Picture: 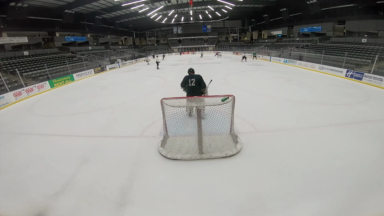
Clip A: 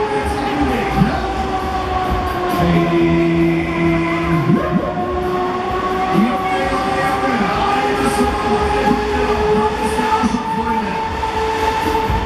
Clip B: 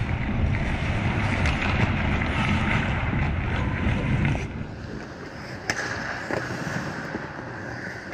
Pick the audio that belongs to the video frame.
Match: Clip B